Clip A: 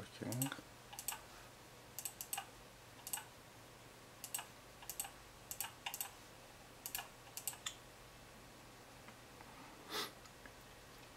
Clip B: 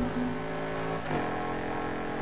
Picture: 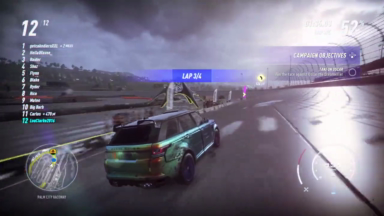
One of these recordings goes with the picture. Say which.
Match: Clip B